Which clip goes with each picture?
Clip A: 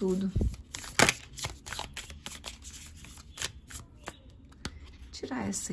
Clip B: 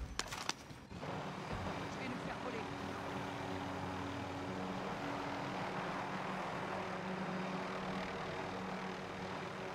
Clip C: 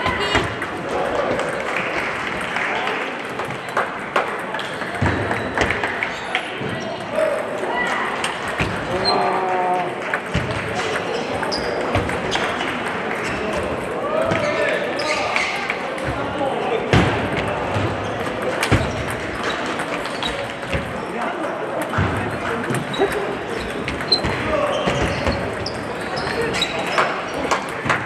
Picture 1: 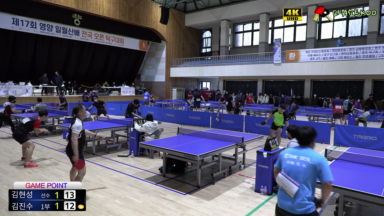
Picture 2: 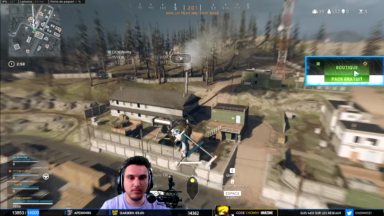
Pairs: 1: C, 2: B